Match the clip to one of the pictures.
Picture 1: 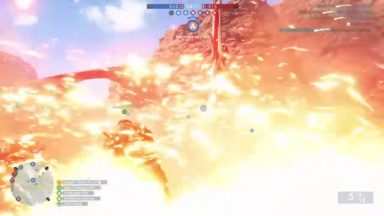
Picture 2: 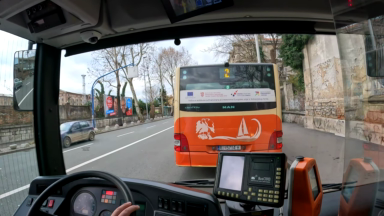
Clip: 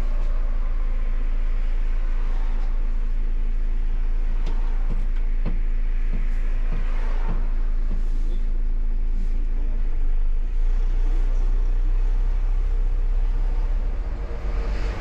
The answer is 2